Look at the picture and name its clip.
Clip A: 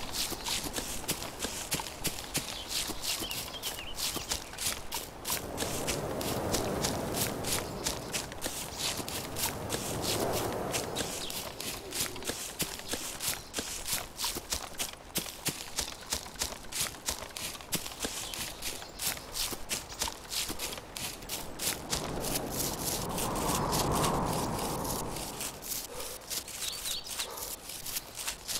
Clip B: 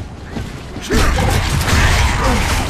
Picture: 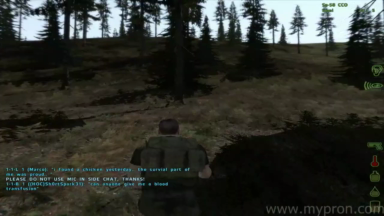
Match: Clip A